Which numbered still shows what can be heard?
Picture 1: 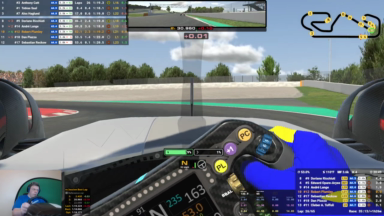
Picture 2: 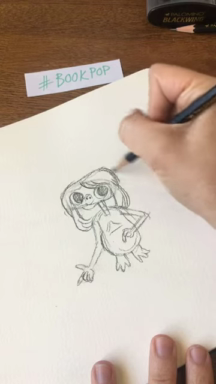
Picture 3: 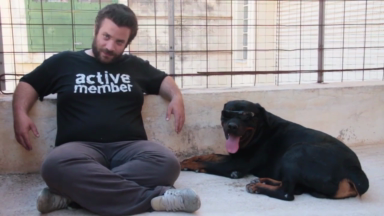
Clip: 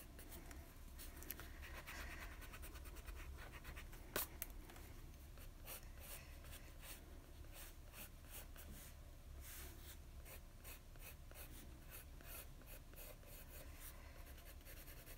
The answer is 2